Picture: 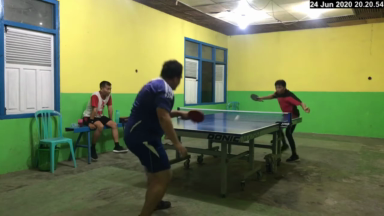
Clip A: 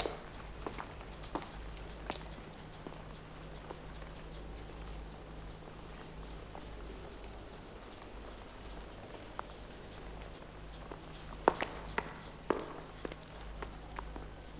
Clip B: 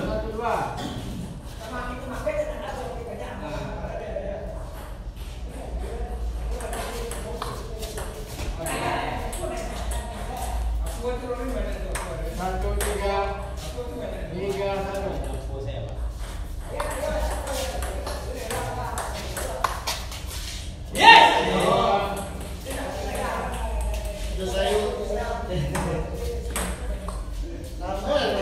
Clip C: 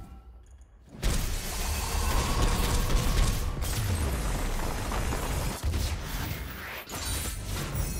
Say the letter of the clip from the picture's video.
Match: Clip B